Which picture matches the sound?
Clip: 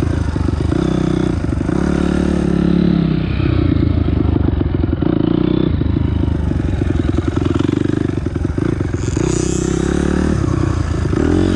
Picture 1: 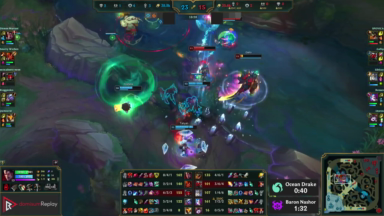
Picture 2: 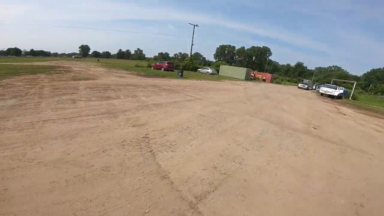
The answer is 2